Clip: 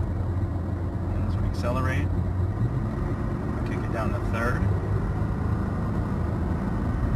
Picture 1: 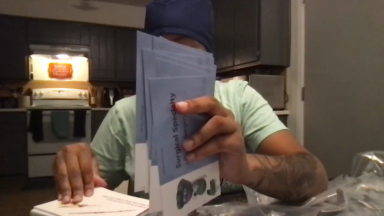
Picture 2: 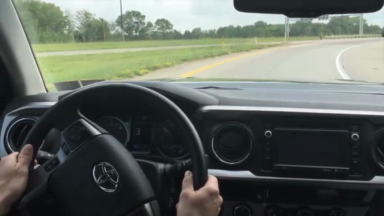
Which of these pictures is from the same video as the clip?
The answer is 2